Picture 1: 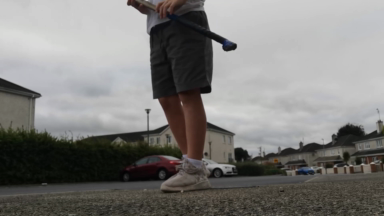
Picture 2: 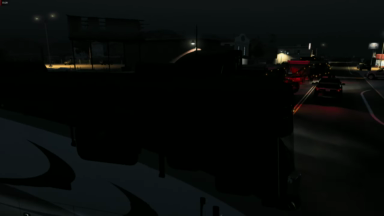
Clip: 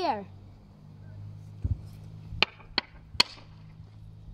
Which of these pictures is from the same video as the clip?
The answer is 1